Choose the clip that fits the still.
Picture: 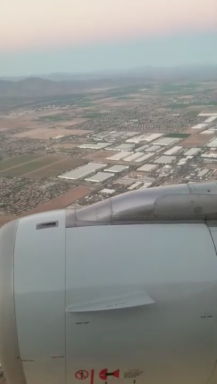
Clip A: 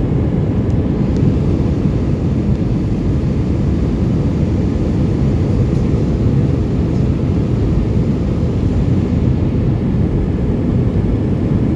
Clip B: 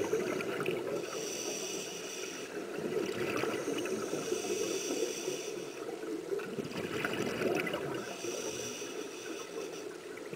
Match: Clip A